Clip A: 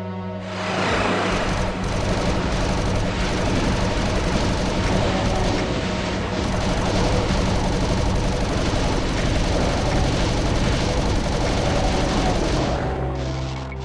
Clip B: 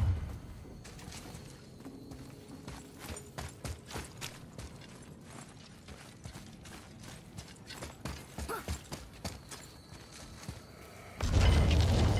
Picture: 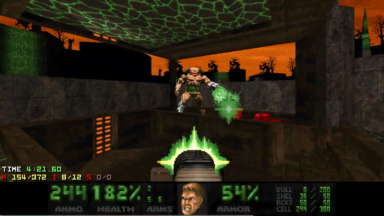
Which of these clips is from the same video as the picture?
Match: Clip A